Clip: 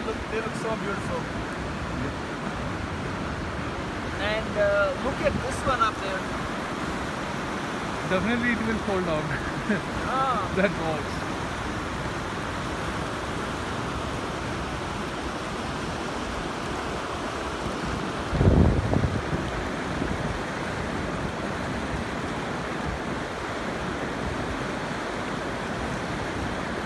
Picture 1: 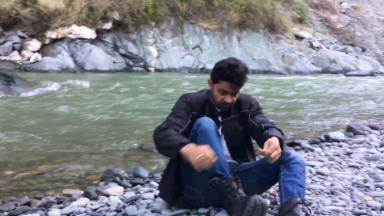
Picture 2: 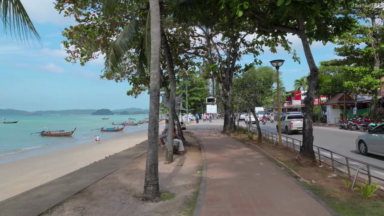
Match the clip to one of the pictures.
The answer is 1